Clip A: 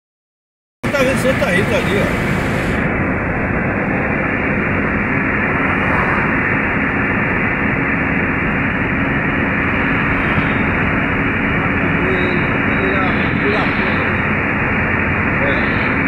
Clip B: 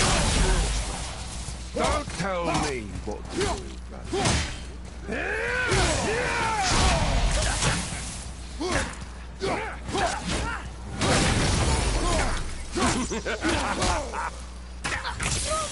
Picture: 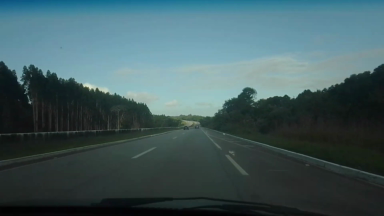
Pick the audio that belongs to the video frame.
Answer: A